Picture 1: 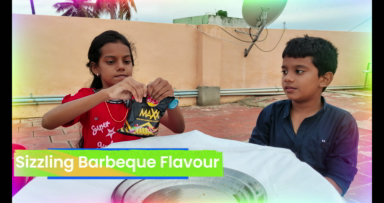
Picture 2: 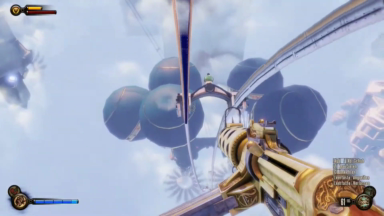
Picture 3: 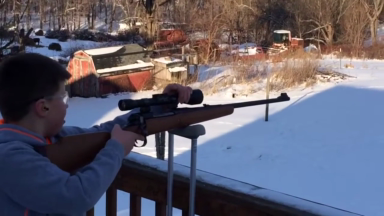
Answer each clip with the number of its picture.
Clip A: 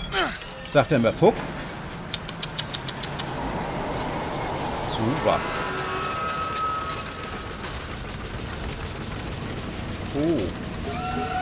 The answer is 2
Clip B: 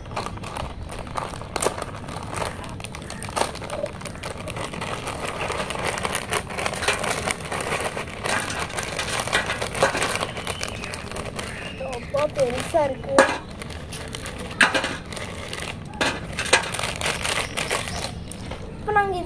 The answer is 1